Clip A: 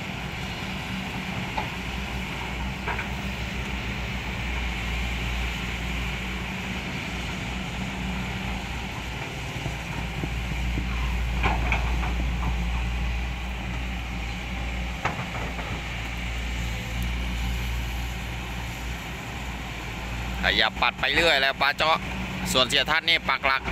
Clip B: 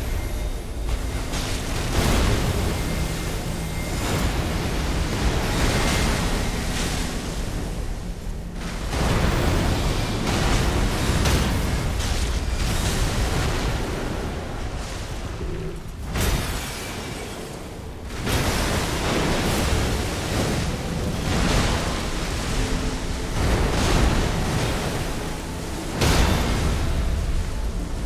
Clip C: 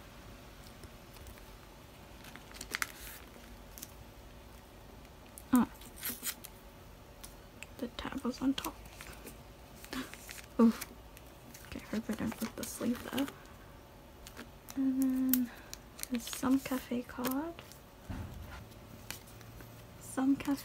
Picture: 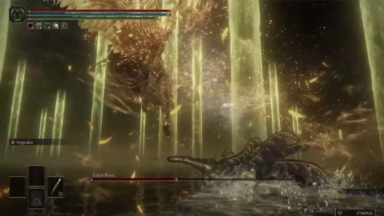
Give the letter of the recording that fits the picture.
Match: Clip B